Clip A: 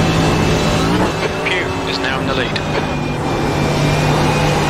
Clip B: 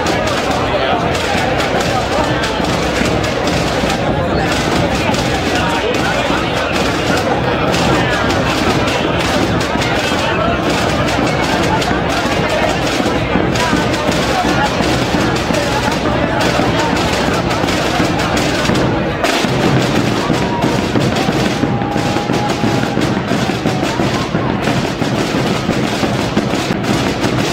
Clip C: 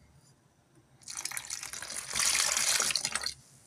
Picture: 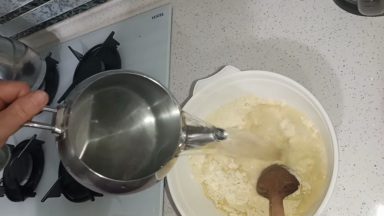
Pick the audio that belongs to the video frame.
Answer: C